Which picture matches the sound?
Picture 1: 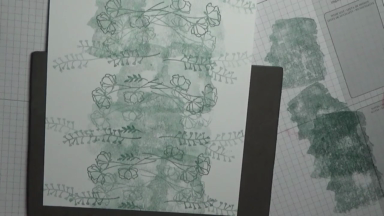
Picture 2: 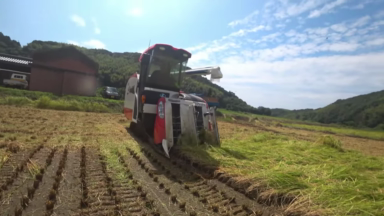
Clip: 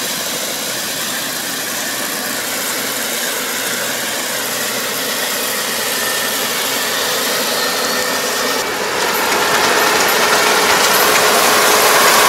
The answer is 2